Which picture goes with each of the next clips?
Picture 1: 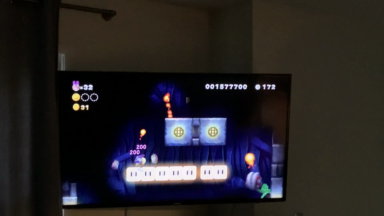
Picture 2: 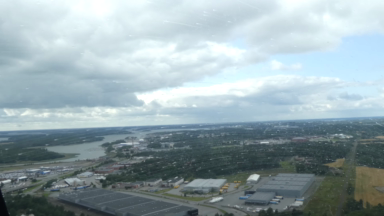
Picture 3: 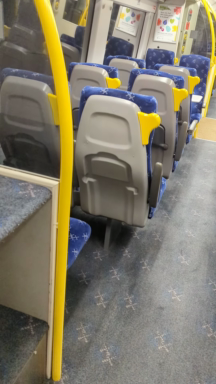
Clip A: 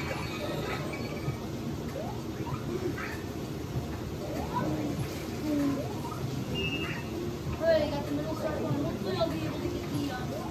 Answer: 1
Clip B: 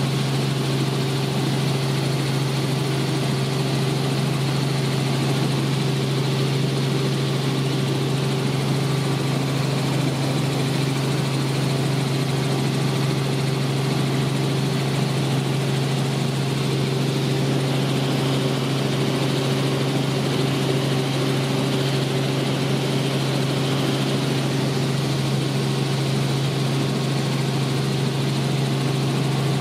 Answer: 2